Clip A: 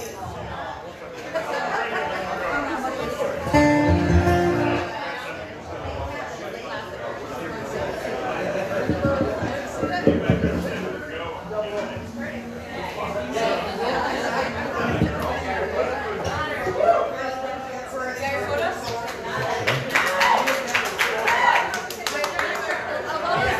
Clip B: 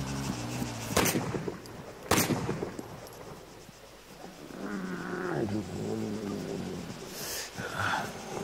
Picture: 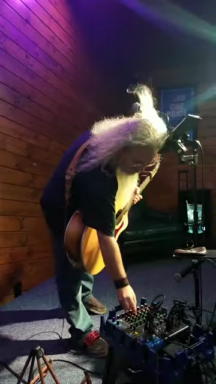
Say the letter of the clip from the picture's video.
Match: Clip A